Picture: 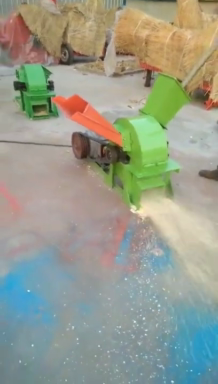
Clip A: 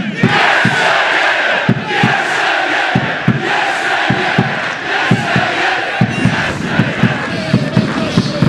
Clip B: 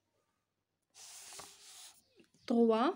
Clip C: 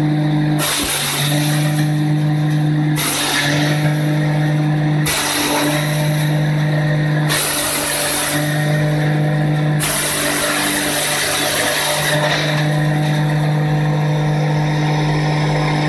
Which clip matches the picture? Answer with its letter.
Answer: C